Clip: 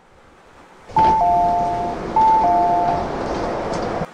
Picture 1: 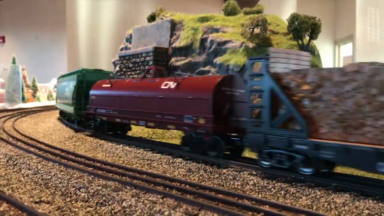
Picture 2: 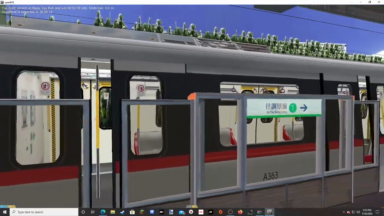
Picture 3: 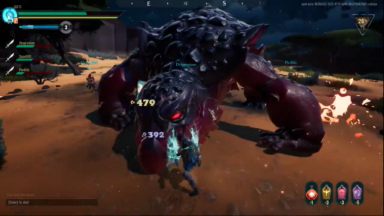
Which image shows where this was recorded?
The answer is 2